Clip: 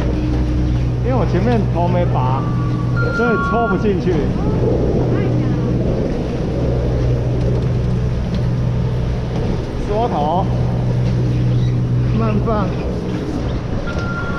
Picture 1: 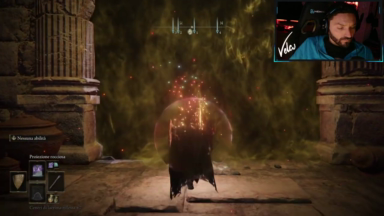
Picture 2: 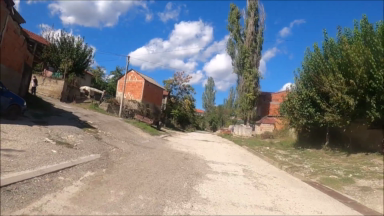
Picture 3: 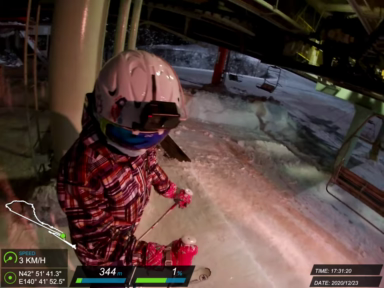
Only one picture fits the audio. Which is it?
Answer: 3